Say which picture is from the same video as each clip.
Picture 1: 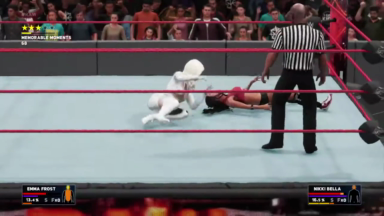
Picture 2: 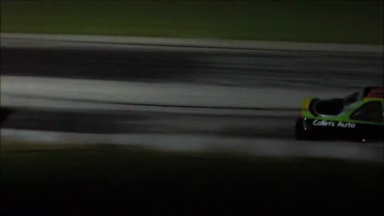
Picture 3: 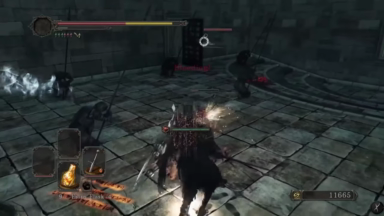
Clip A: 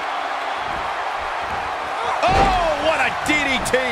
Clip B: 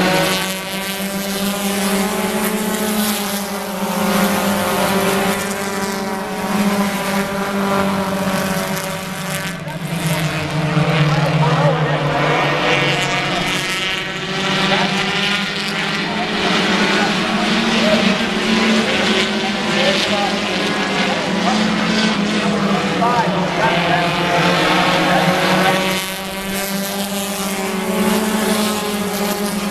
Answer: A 1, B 2